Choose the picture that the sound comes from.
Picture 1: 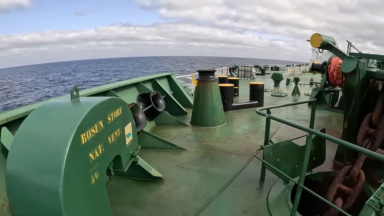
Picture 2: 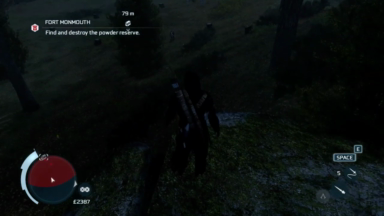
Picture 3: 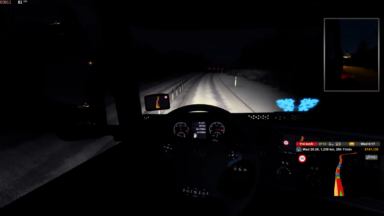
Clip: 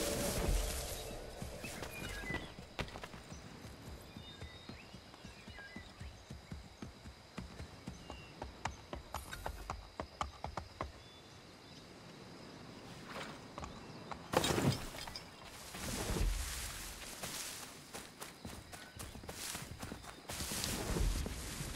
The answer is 2